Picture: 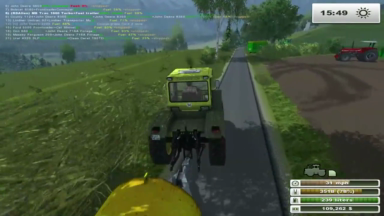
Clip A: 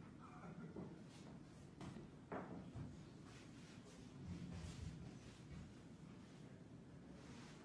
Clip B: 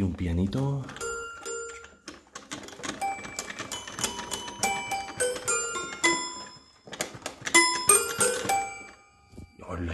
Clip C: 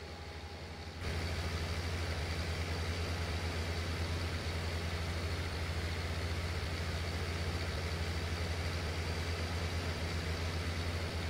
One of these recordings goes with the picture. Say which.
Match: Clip C